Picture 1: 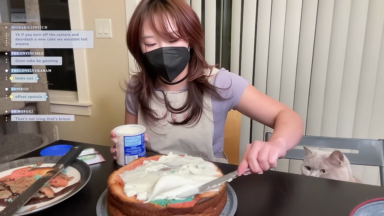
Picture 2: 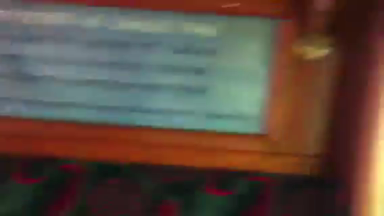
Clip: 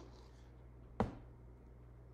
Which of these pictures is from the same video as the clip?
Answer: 1